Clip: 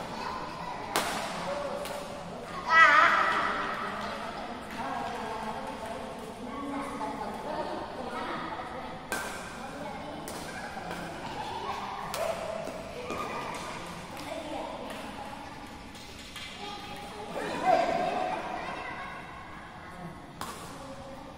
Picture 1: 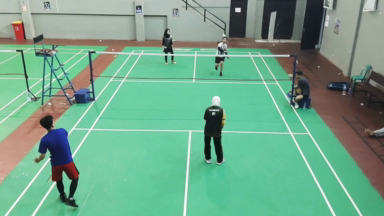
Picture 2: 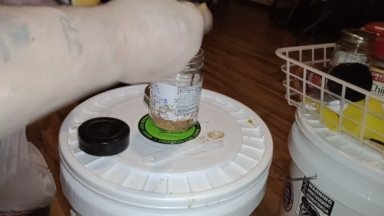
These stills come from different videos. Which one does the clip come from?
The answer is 1